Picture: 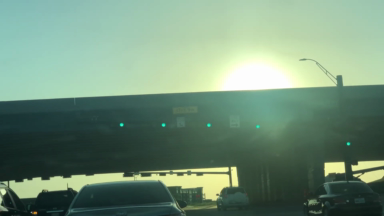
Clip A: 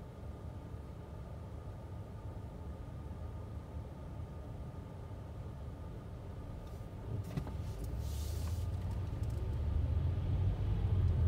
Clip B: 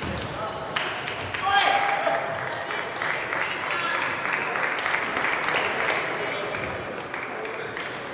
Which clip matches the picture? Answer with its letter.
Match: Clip A